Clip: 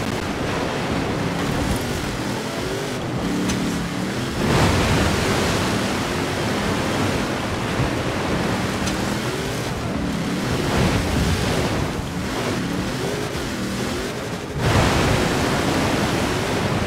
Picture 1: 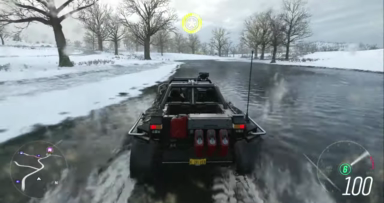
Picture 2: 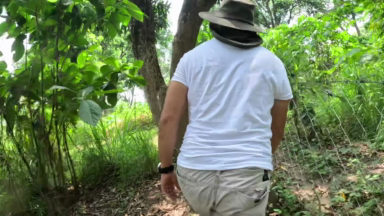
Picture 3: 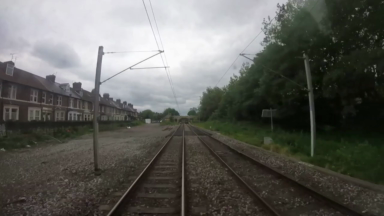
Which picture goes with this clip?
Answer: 1